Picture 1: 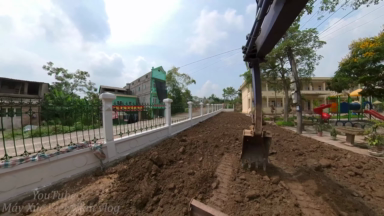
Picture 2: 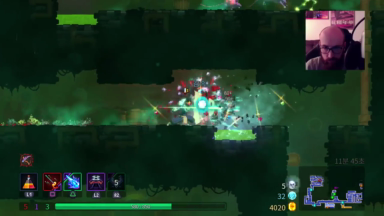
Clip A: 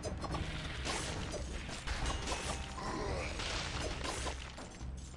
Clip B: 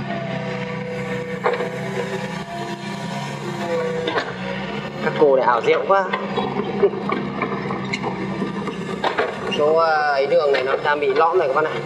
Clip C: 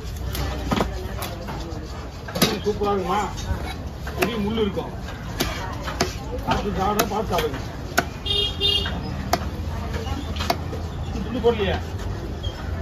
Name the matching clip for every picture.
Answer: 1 B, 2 A